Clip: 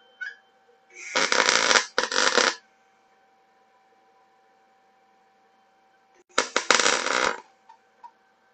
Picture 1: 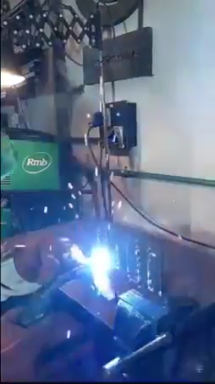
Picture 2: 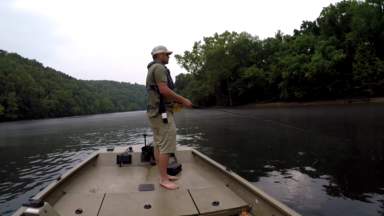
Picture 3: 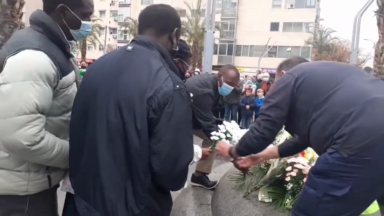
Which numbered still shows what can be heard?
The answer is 1